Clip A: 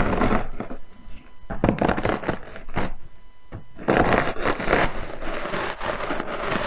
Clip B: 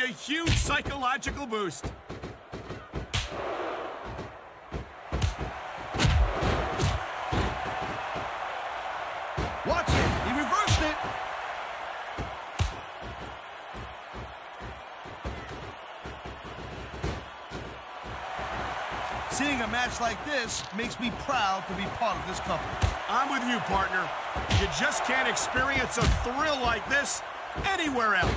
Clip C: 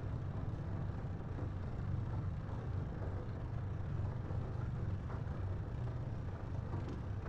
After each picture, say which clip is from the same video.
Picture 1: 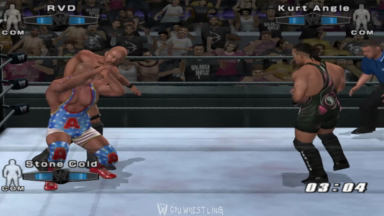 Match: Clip B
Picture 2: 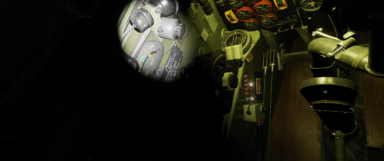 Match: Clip C